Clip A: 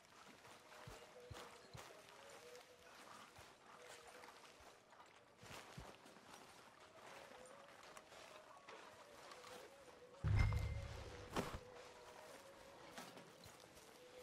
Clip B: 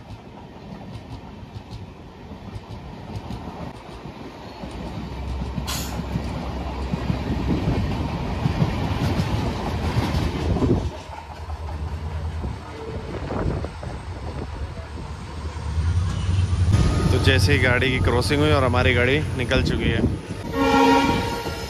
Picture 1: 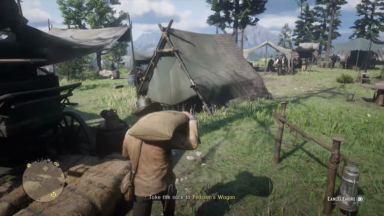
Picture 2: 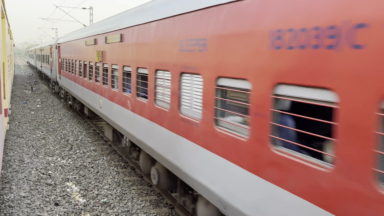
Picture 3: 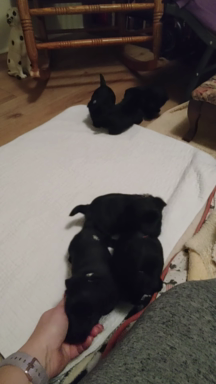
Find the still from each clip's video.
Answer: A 1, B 2